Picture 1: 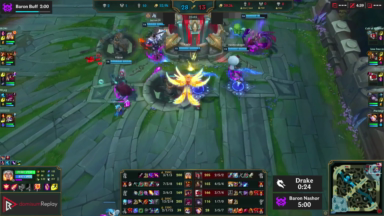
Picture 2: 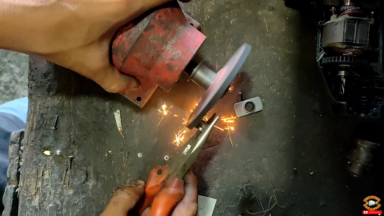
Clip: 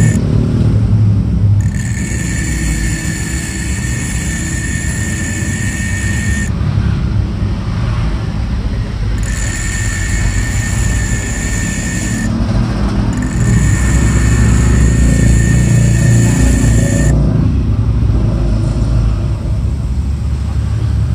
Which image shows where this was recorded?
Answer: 2